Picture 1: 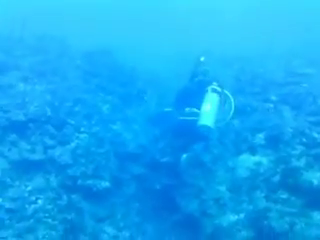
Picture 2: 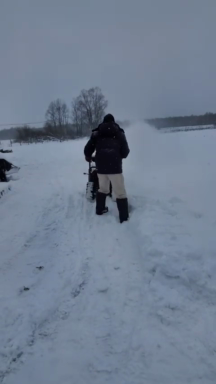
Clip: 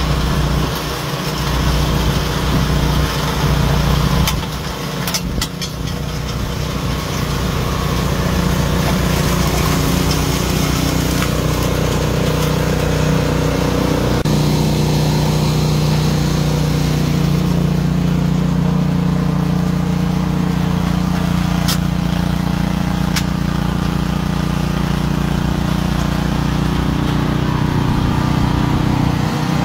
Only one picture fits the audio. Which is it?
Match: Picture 2